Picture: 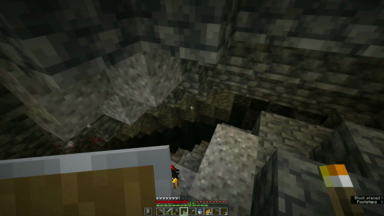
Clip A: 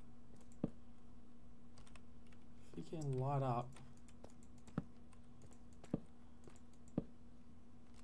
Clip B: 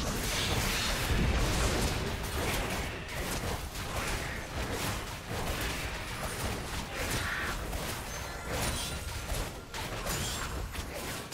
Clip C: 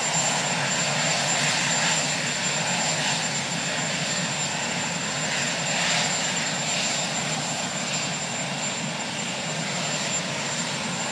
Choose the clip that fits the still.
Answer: A